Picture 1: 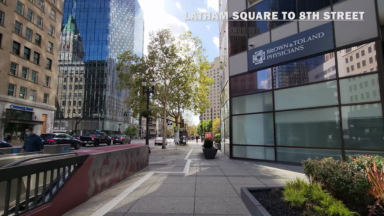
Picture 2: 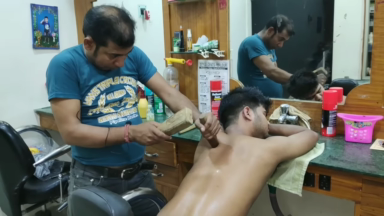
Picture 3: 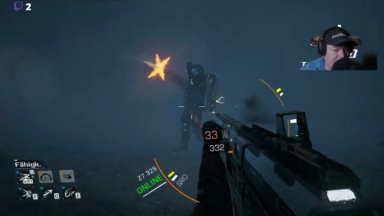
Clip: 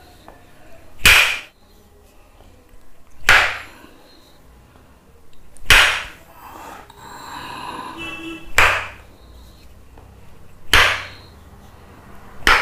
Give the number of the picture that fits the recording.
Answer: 2